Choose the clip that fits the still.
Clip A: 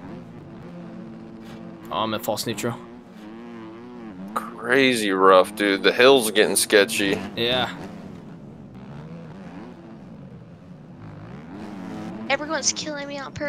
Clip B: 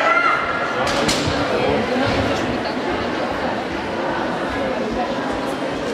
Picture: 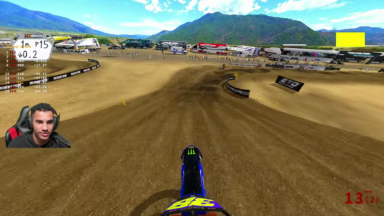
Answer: A